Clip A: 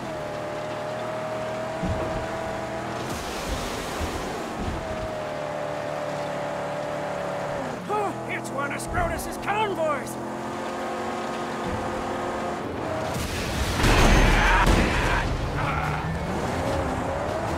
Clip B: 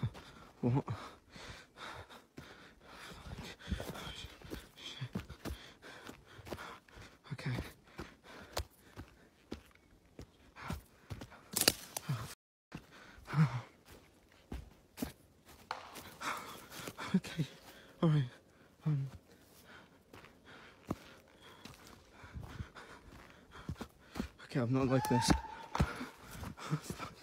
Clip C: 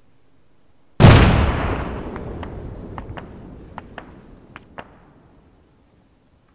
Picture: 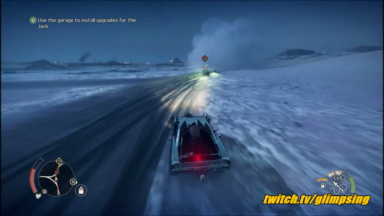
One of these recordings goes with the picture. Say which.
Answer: A